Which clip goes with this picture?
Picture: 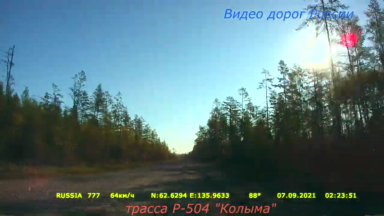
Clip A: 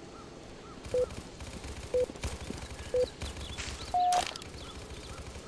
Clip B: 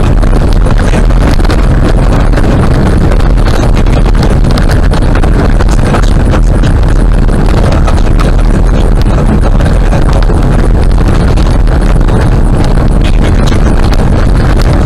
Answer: B